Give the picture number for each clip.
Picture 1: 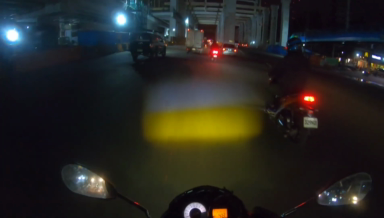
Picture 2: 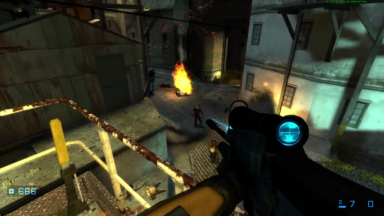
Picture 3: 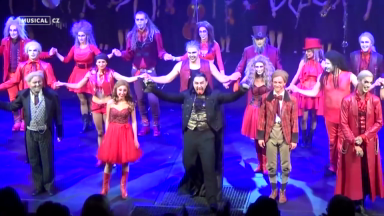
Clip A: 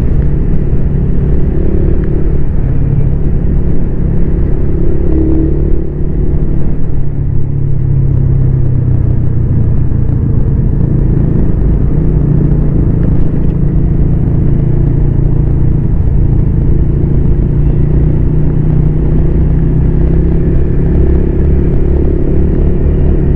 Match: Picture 1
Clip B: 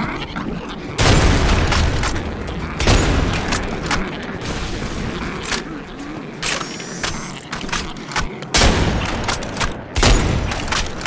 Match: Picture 2